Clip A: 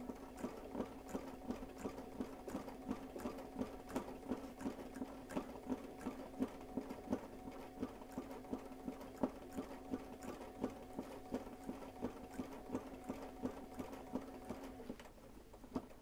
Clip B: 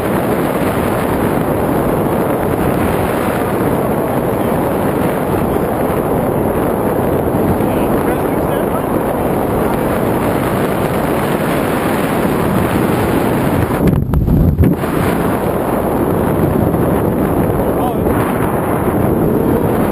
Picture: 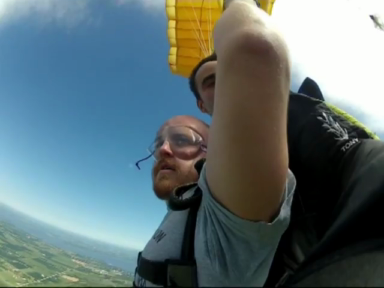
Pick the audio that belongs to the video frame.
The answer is B